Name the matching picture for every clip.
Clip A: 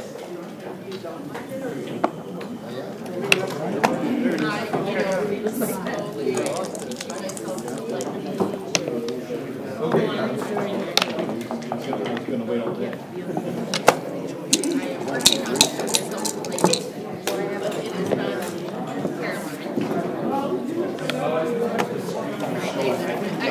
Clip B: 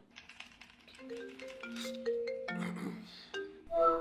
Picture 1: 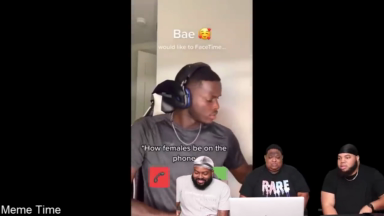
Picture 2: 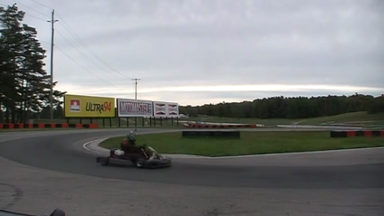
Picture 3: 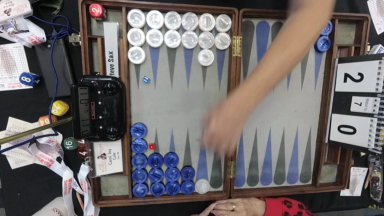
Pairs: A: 3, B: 1